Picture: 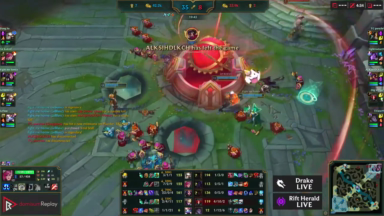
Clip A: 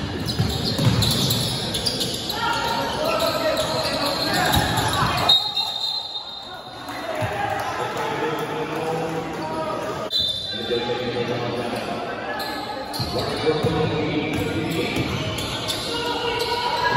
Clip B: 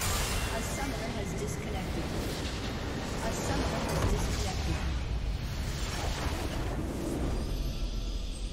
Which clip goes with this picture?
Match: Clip B